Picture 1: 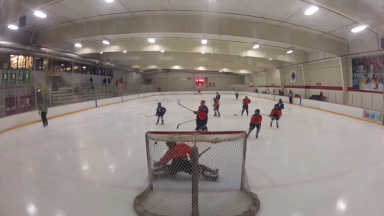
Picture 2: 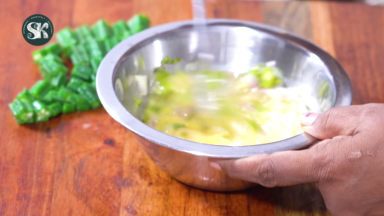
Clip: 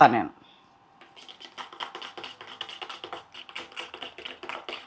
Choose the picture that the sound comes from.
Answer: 2